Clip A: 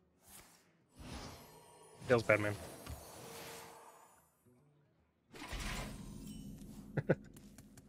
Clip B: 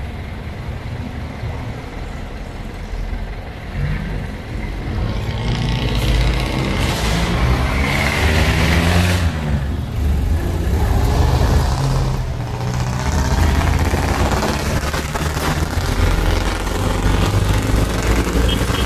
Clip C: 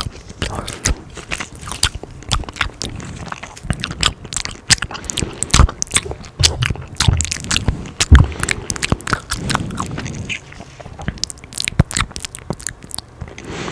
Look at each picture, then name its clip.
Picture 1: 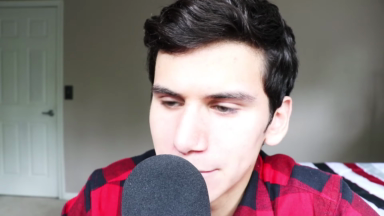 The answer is C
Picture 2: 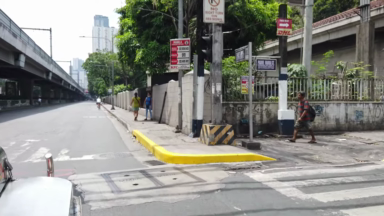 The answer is B